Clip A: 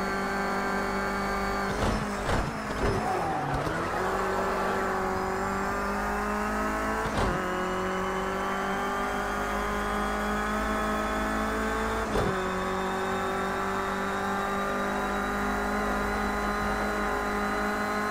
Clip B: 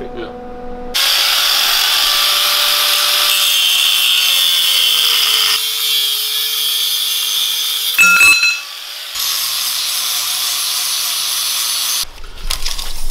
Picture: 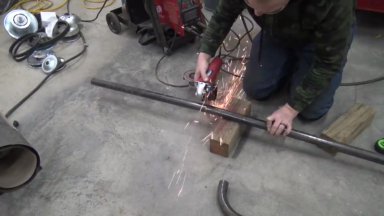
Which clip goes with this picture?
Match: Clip B